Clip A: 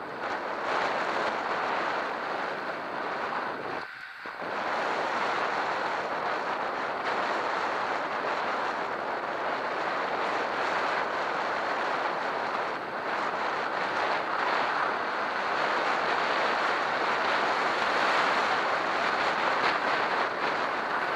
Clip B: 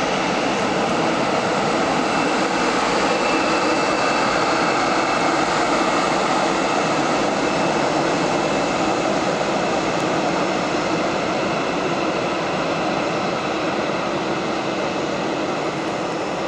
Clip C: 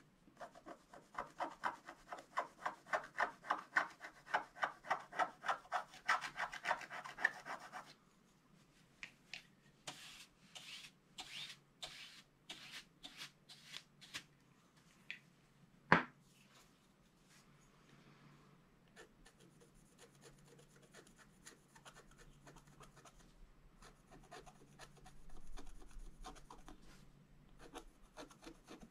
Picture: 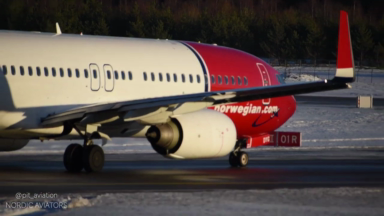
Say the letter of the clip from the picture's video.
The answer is B